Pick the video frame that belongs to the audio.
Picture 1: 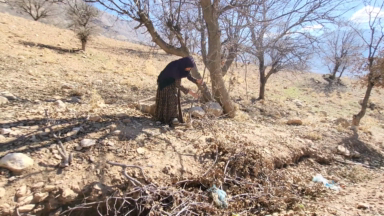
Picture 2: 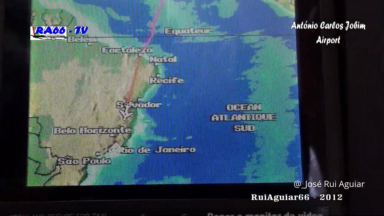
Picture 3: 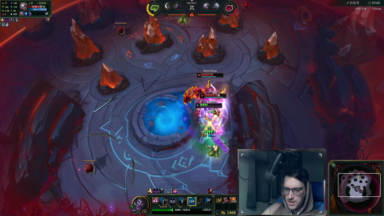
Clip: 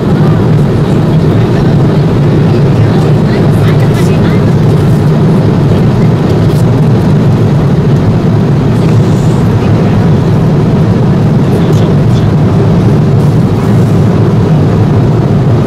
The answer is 2